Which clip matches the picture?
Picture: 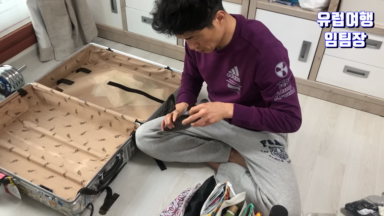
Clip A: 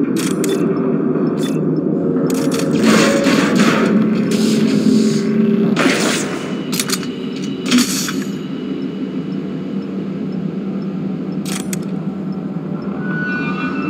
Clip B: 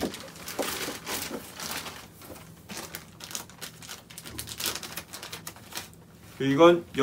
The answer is B